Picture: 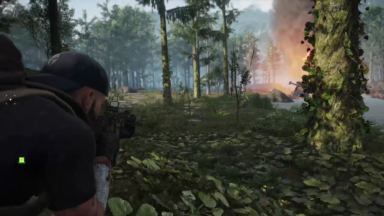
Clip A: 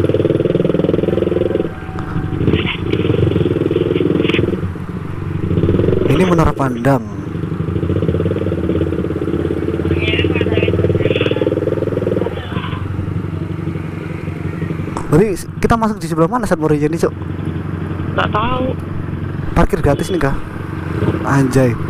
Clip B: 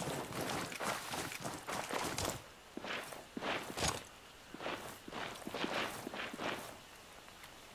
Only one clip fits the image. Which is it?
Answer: B